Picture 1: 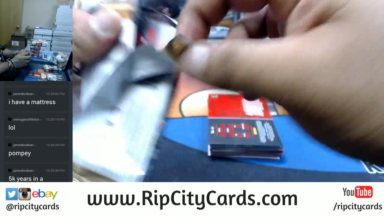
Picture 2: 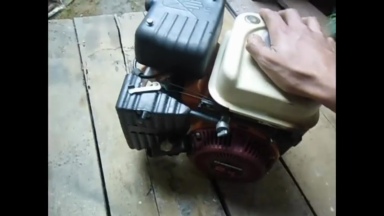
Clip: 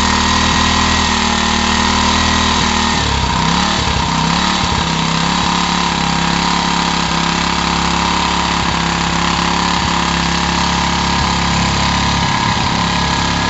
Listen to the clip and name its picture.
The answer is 2